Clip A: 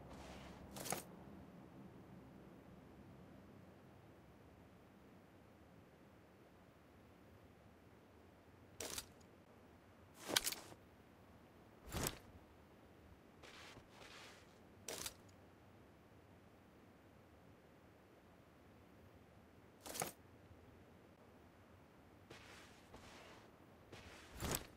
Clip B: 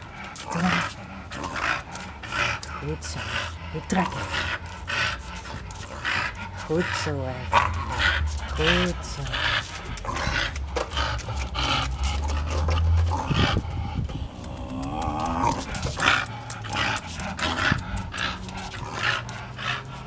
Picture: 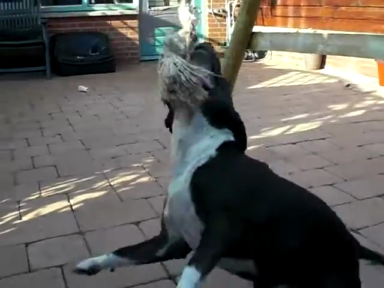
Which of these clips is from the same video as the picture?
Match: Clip B